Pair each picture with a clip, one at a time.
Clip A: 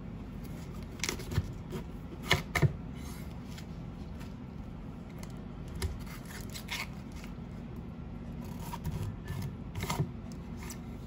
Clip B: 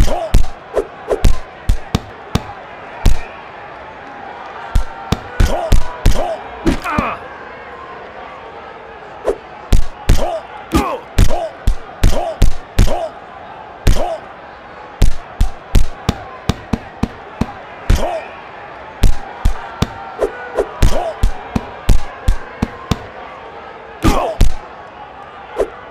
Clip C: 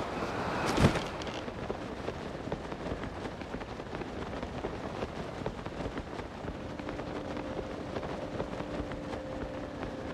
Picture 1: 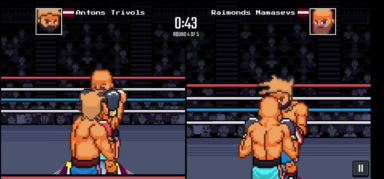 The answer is B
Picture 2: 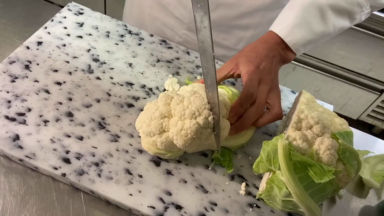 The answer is A